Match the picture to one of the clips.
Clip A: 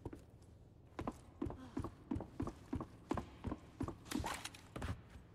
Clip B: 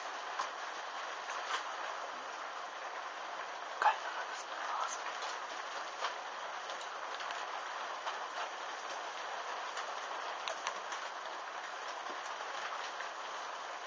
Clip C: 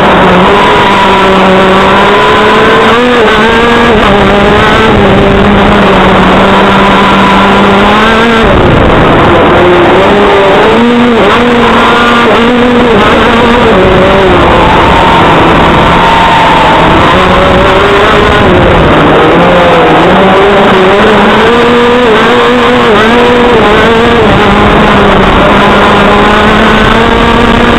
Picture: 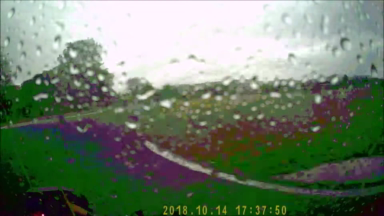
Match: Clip C